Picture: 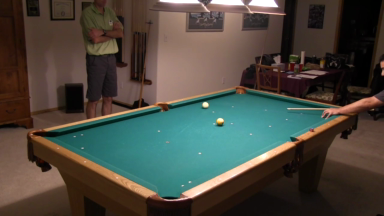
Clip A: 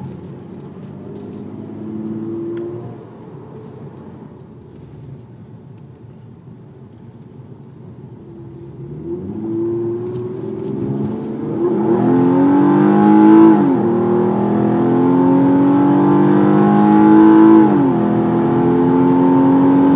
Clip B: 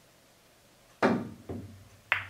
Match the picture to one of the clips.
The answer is B